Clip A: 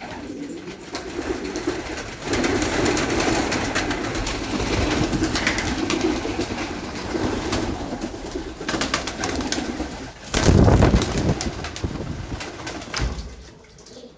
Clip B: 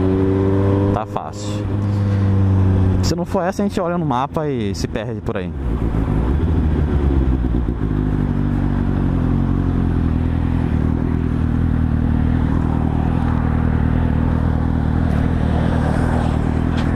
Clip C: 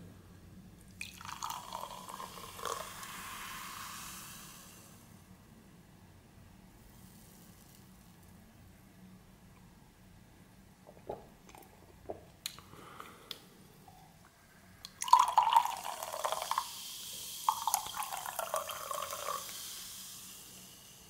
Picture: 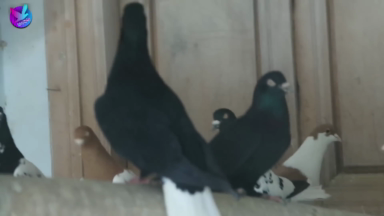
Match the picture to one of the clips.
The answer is A